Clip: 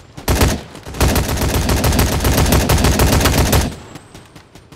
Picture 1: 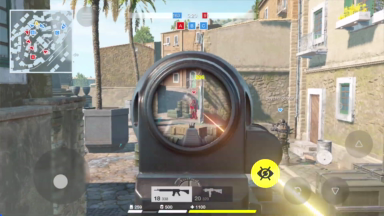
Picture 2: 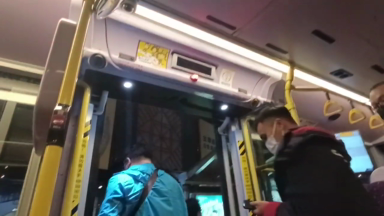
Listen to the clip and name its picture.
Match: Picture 1